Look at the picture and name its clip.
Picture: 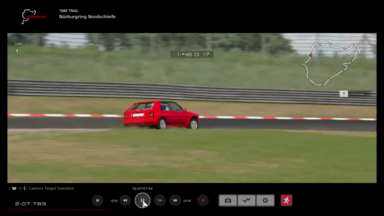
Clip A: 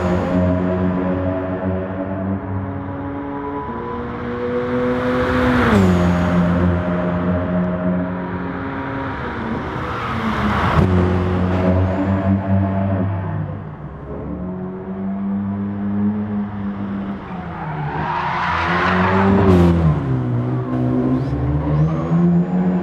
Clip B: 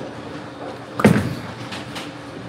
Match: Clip A